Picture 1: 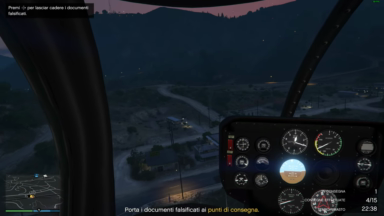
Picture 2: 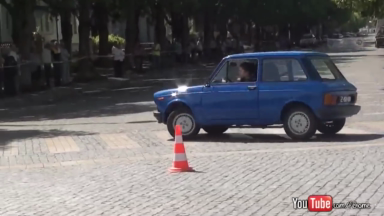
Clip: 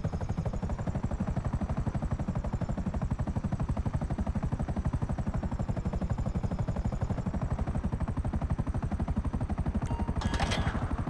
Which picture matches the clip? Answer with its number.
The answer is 1